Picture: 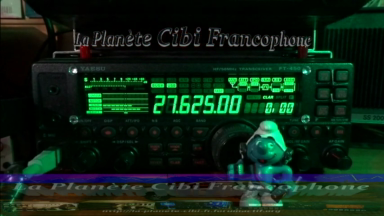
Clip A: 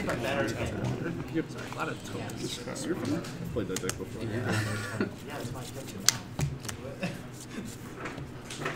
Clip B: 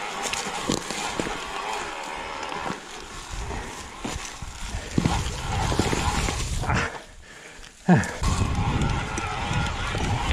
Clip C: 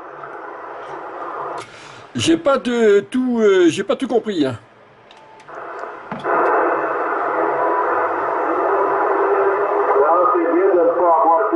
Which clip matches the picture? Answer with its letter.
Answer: C